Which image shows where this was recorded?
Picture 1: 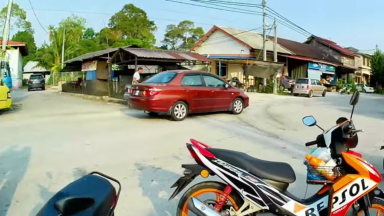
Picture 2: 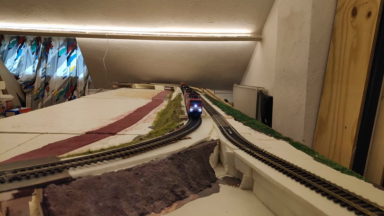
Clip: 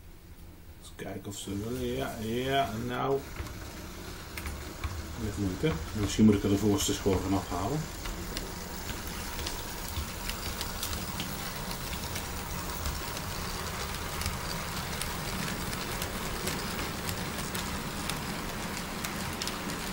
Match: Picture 2